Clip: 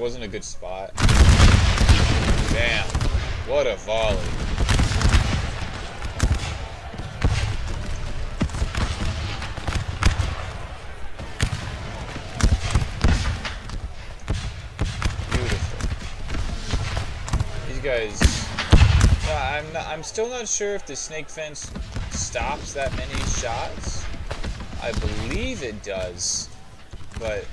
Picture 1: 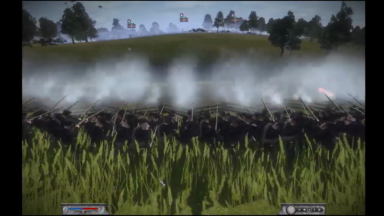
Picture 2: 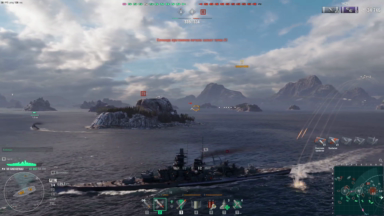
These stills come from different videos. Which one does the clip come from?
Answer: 1